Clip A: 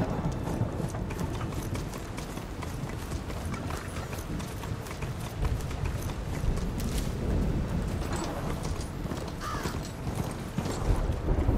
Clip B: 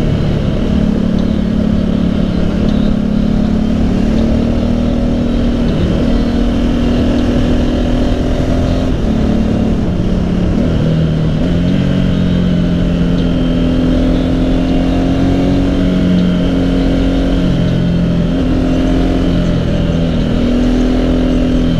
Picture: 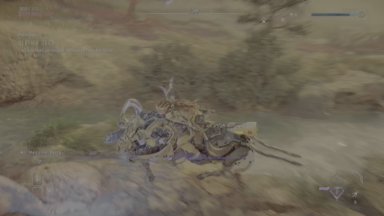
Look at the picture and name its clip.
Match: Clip A